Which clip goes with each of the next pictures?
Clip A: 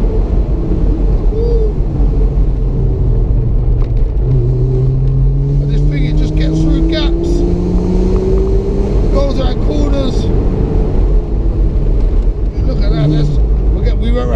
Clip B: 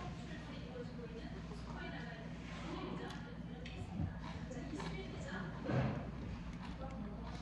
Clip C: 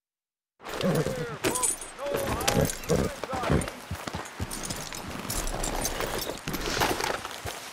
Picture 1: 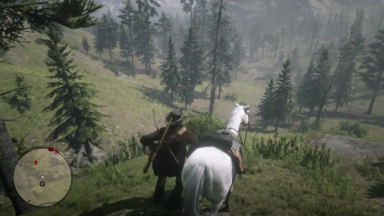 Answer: C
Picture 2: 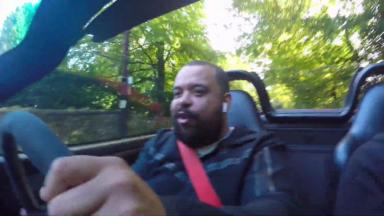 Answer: A